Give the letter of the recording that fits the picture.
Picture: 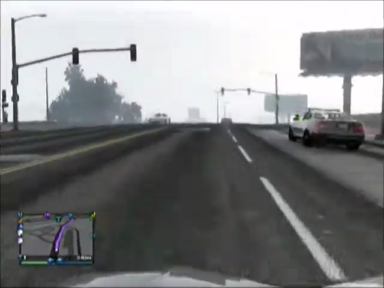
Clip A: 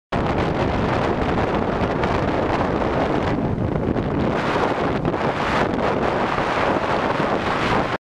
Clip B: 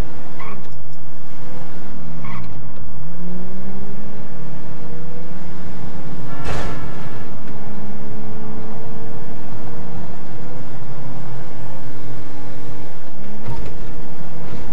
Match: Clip B